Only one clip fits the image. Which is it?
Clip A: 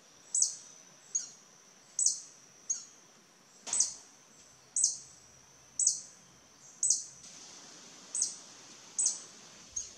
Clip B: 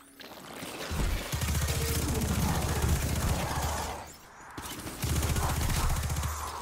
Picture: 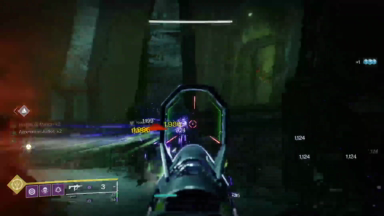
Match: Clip B